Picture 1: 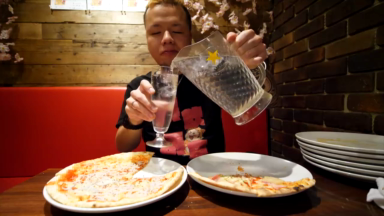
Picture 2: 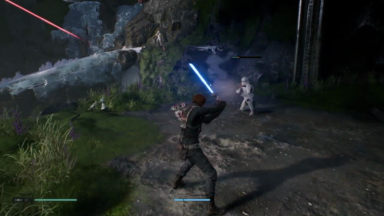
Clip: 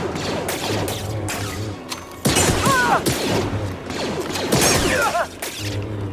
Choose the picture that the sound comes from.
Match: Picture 2